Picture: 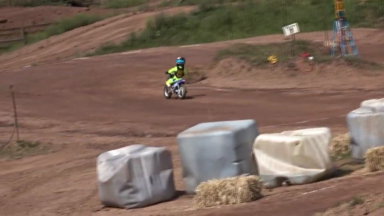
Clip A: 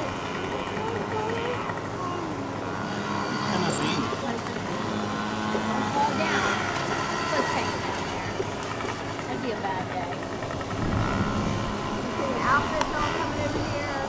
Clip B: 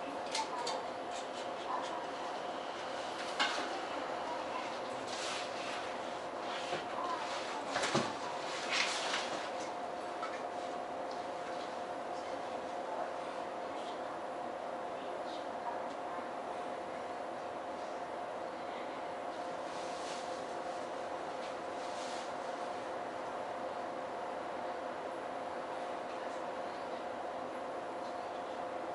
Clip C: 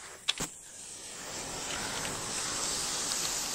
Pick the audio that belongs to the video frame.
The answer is A